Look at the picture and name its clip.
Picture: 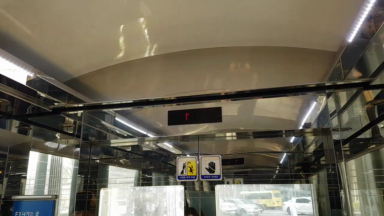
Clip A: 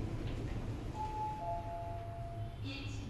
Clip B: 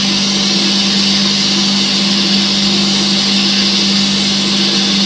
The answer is A